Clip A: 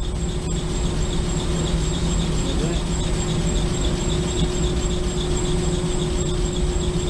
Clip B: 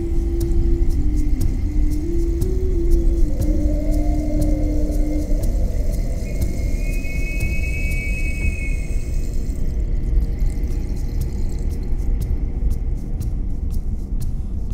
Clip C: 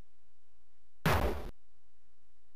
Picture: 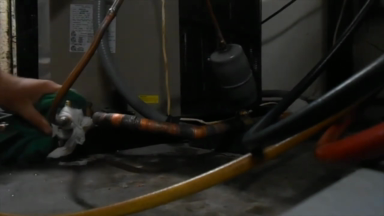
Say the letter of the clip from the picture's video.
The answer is A